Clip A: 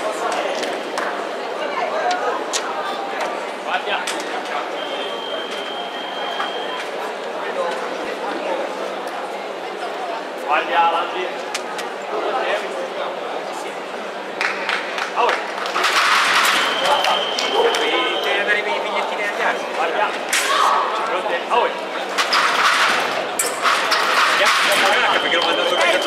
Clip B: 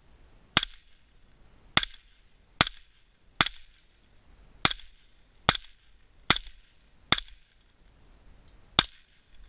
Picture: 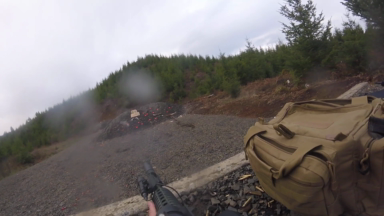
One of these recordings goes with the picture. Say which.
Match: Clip B